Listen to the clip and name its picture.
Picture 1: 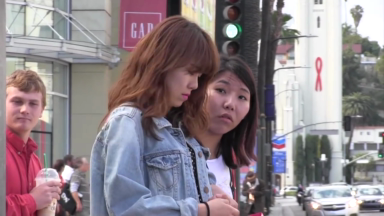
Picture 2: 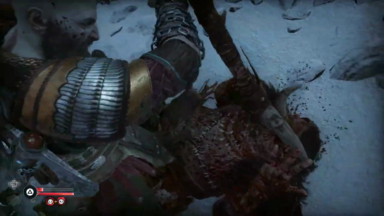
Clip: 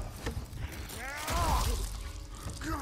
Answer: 2